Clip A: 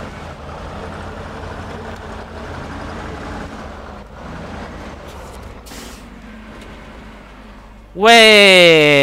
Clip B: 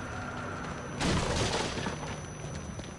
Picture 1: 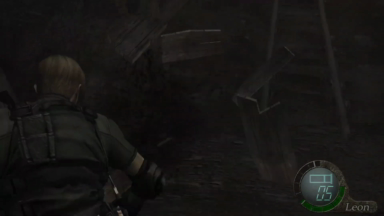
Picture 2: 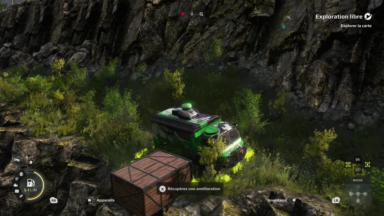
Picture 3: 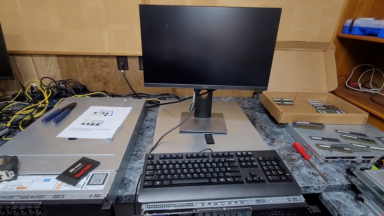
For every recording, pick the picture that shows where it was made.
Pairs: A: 2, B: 1